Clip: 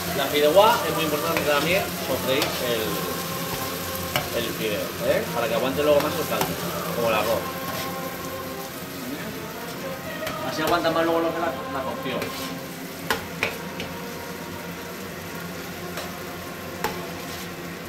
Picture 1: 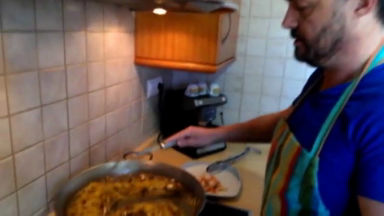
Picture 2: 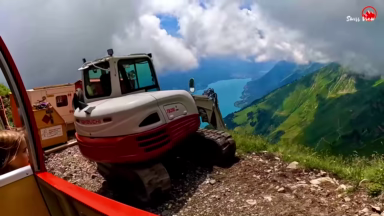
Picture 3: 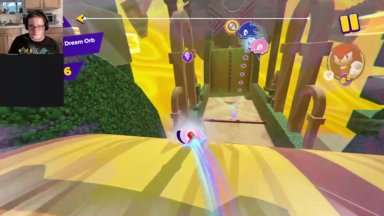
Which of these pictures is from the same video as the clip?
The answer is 1